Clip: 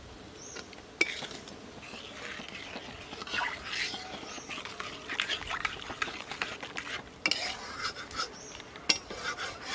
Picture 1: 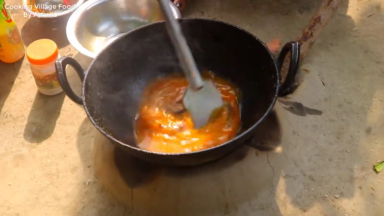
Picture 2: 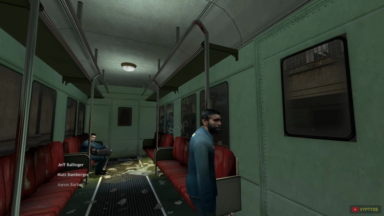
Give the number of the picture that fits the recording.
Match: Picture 1